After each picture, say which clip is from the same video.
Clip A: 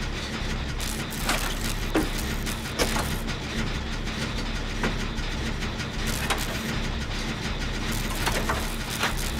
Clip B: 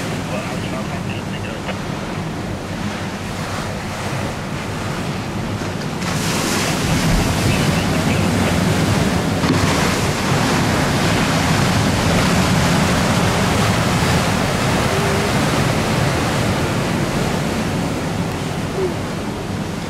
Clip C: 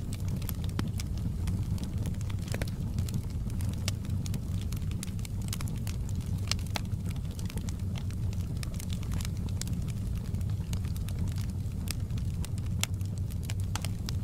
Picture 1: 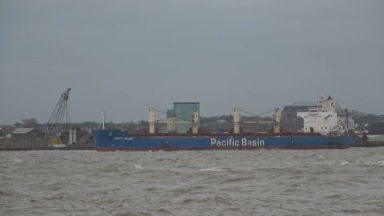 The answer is B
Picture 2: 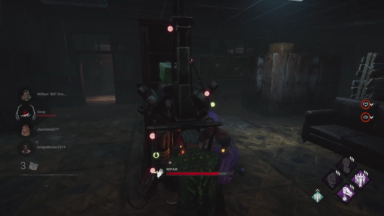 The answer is A